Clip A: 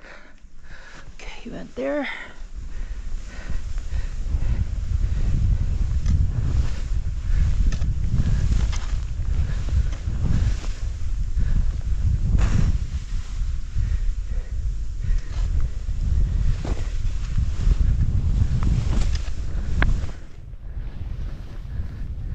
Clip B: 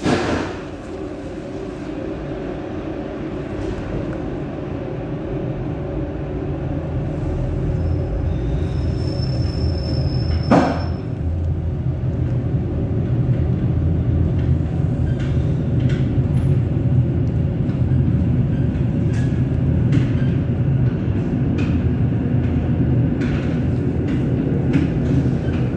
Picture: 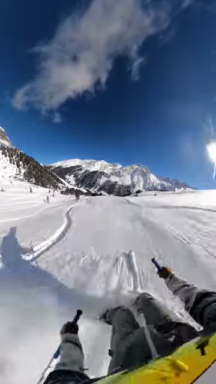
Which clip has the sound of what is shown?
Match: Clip A